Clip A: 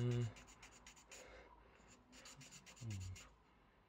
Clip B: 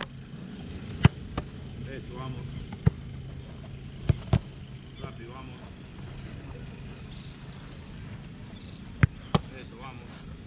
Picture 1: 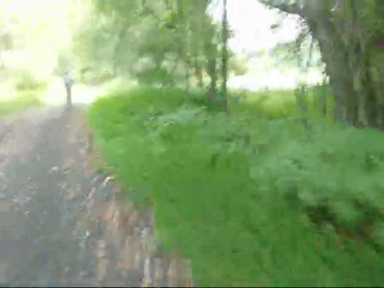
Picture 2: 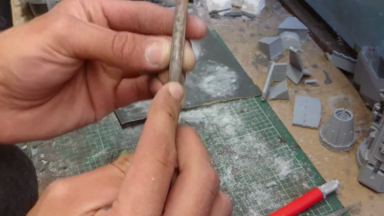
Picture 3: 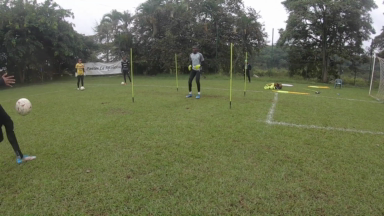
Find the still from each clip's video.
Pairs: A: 2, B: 3